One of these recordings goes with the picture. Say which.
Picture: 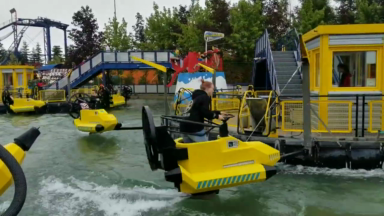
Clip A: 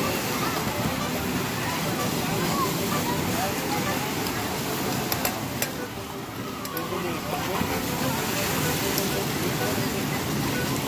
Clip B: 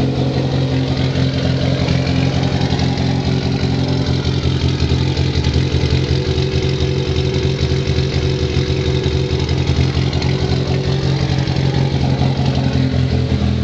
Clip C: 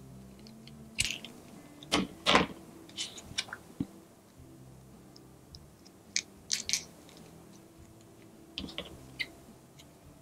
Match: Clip A